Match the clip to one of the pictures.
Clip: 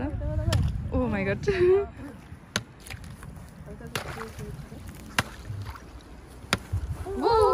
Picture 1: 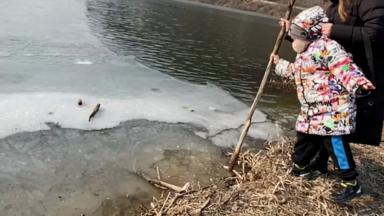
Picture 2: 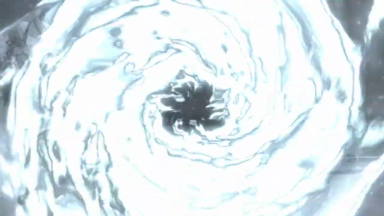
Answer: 1